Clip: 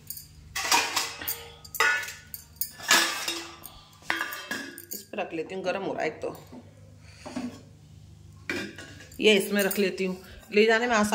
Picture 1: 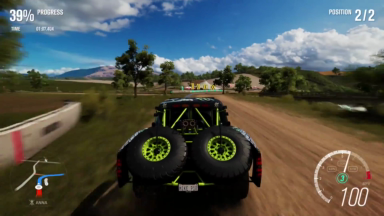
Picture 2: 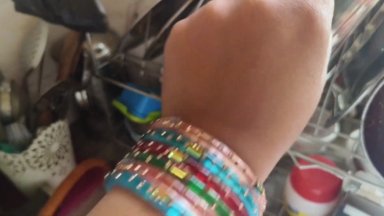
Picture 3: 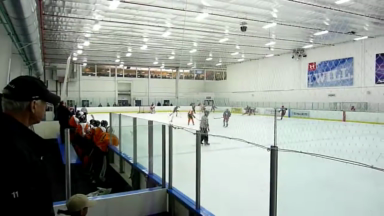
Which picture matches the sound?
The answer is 2